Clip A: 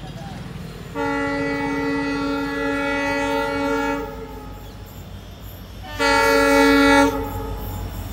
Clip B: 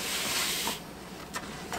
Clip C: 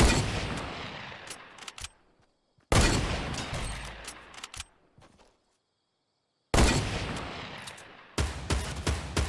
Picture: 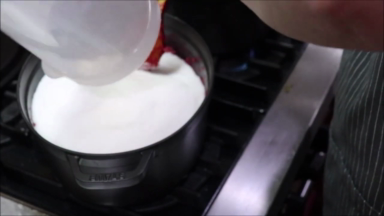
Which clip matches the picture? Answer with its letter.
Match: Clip B